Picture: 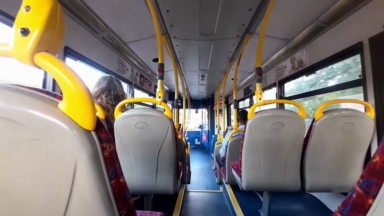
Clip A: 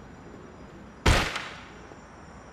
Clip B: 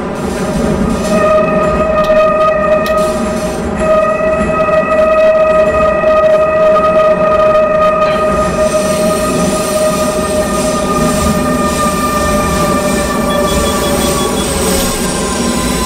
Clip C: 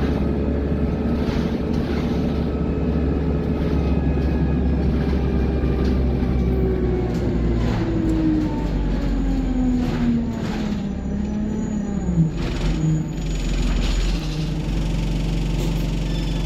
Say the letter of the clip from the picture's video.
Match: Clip C